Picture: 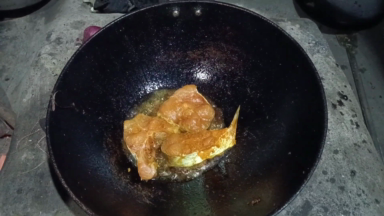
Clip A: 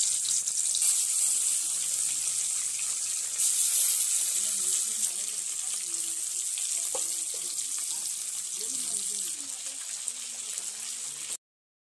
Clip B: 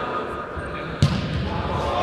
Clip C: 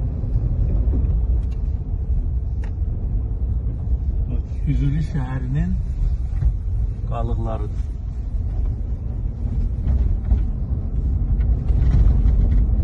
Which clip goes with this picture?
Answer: A